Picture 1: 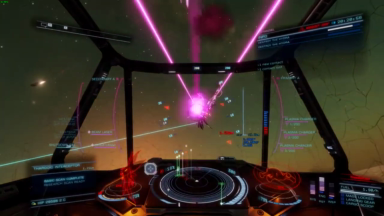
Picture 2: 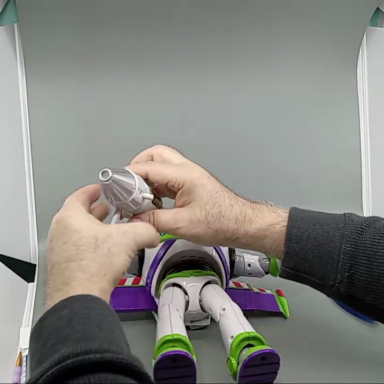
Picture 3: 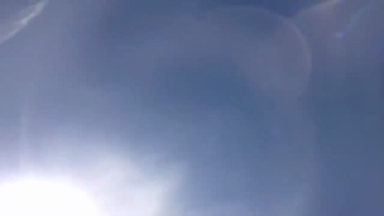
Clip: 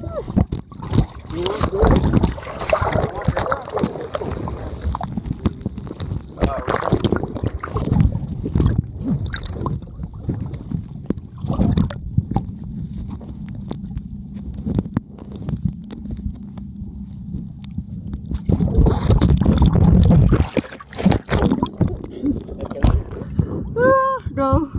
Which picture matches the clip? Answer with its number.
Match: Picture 3